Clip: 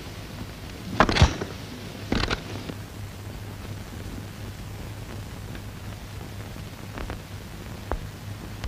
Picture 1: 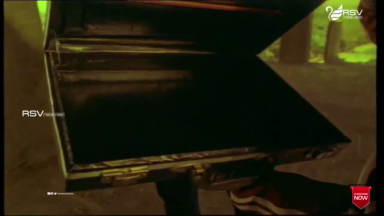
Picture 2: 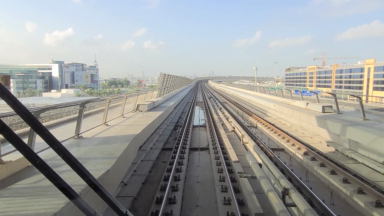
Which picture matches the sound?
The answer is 1